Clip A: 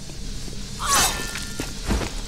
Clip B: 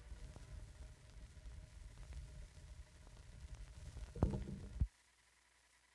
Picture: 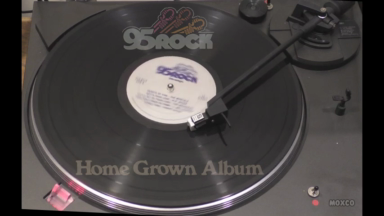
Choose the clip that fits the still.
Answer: B